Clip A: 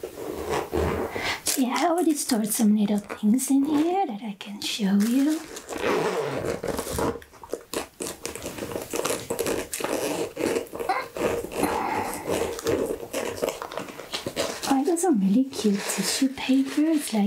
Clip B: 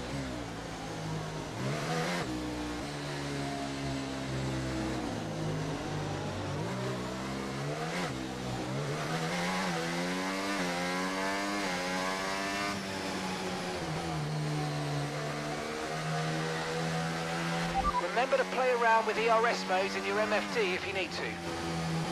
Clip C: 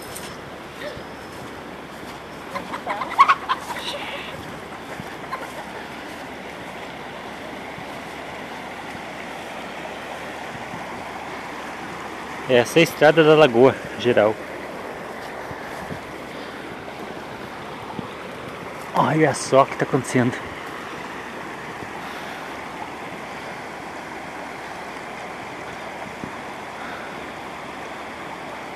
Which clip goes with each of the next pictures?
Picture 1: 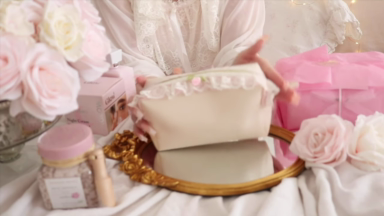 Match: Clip A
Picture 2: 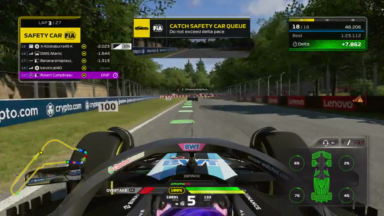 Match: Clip B